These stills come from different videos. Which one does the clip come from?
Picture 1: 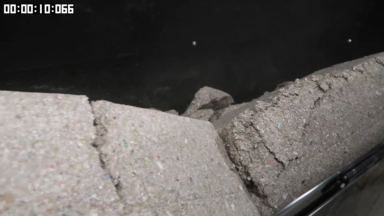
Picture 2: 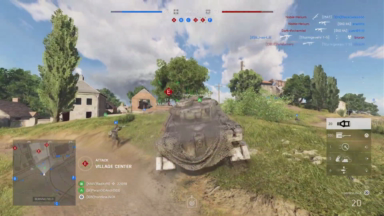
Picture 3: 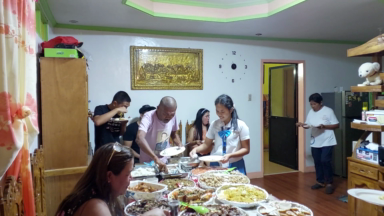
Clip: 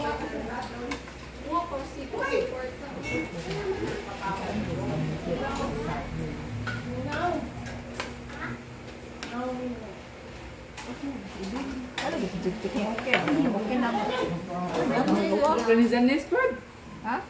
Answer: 3